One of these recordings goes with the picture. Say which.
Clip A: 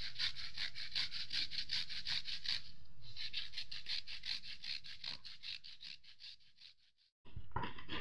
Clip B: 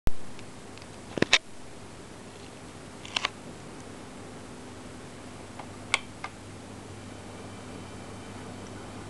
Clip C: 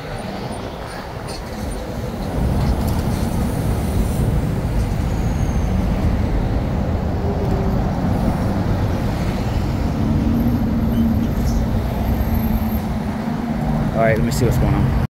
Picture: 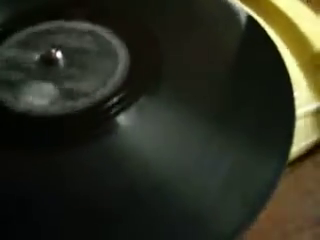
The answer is B